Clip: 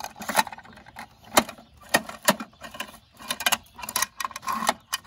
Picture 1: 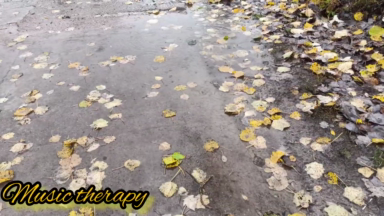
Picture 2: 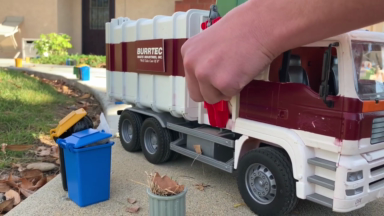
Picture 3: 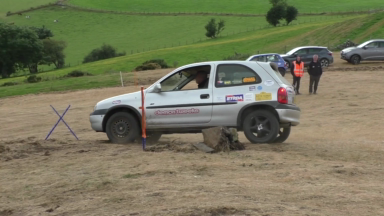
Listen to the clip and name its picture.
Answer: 2